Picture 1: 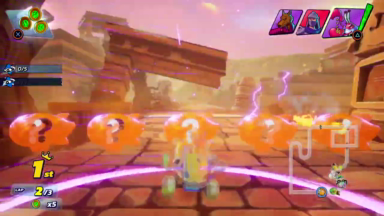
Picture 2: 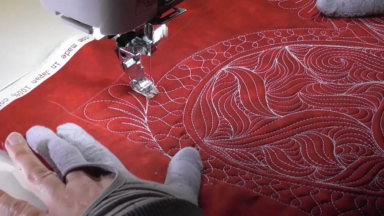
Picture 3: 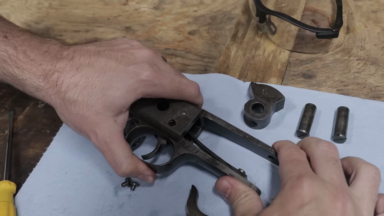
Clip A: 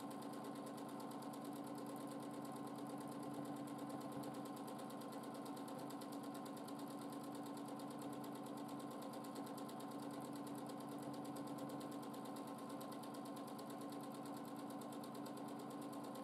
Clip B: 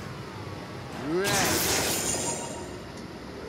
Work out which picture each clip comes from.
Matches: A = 2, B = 1